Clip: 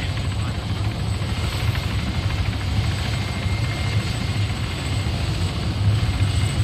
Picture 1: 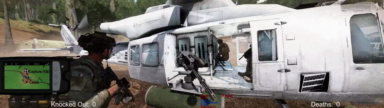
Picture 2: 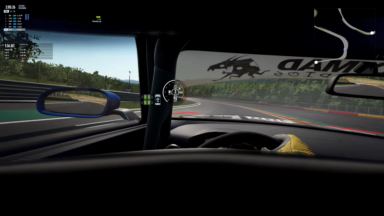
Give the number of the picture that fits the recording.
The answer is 1